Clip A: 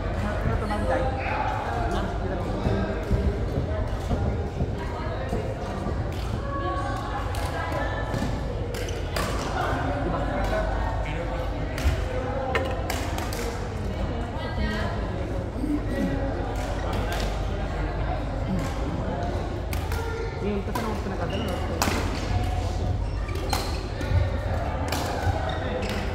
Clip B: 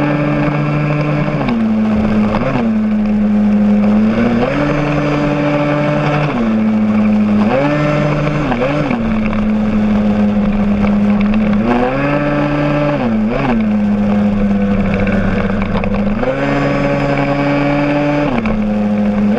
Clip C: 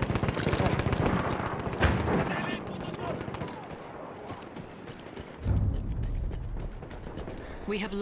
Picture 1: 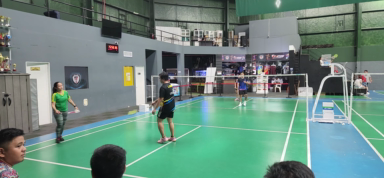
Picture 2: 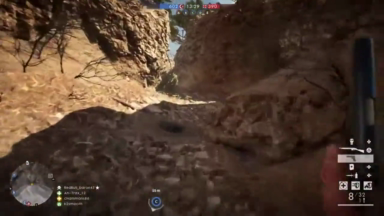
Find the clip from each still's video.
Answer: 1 A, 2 C